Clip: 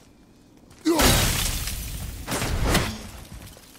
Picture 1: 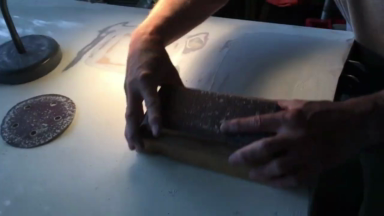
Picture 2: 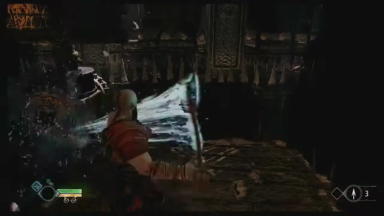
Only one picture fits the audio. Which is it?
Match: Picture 2